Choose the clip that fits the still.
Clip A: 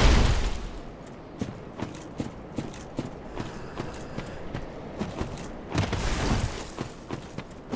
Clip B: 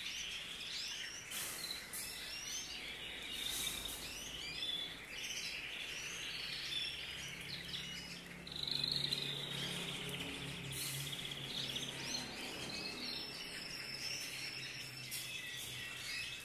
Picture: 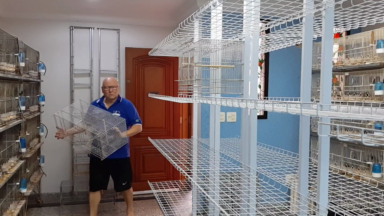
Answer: B